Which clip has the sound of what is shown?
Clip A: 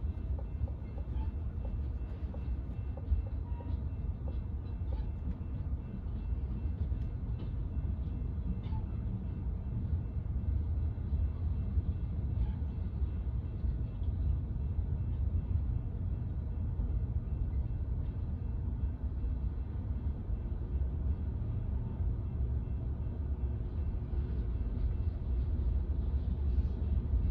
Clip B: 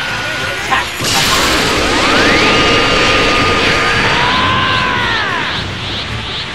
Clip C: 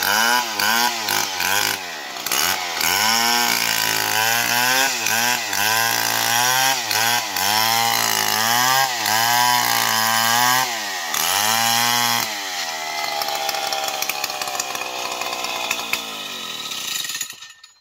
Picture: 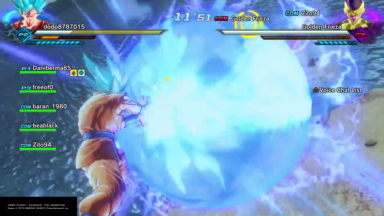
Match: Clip B